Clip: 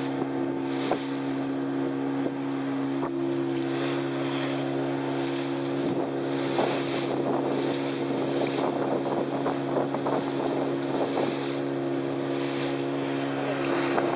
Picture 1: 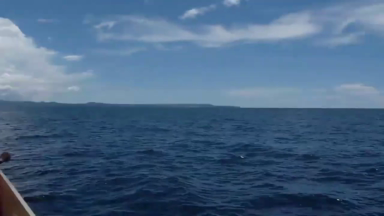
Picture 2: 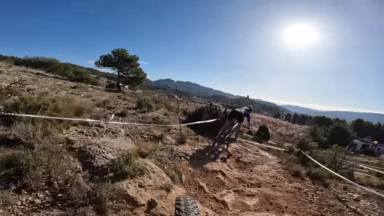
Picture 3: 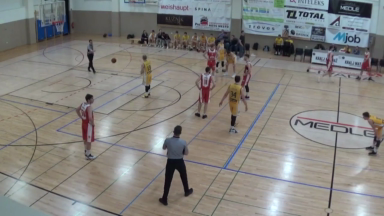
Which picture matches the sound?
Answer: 1